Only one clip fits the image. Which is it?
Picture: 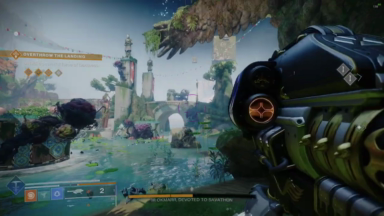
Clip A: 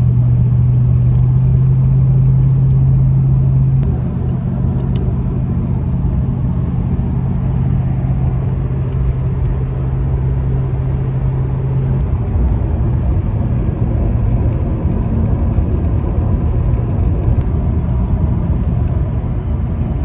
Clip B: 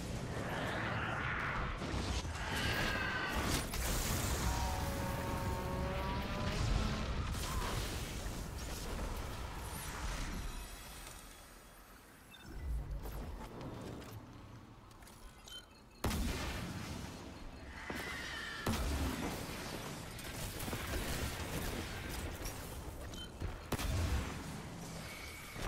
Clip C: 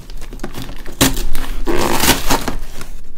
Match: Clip B